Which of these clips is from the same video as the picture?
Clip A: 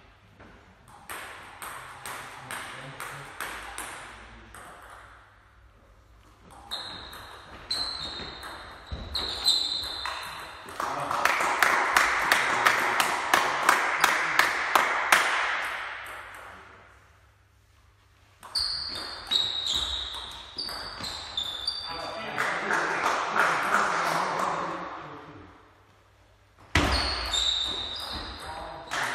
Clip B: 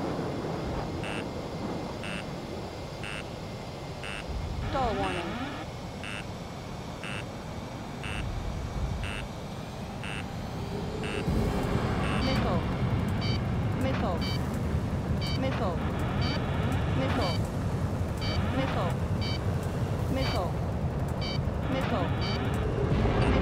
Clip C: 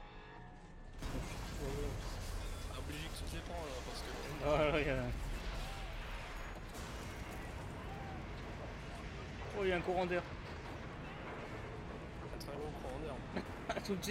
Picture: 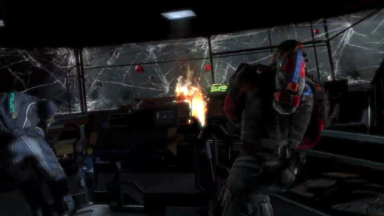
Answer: C